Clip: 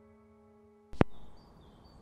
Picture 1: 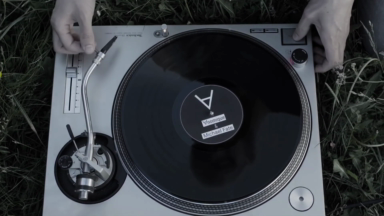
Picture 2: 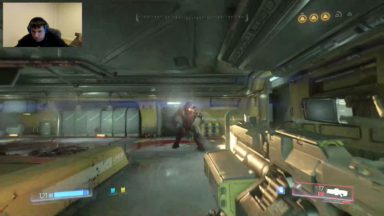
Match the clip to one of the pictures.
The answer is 1